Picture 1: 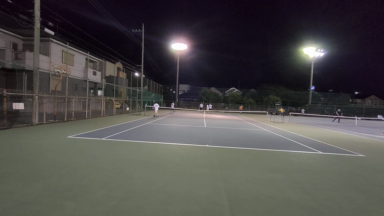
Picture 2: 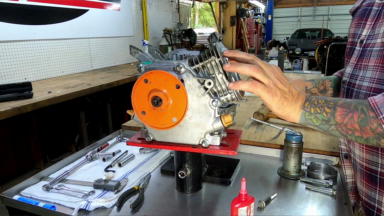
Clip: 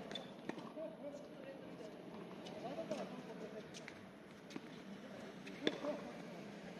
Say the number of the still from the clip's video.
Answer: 1